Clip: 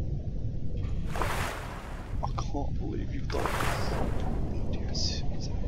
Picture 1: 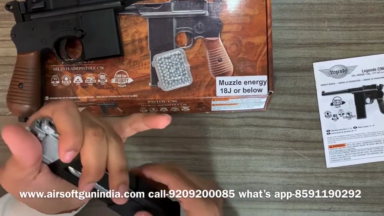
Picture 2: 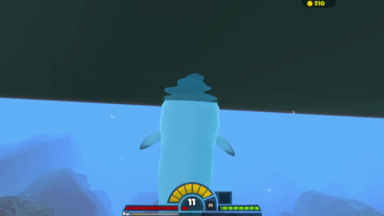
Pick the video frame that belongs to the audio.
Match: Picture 2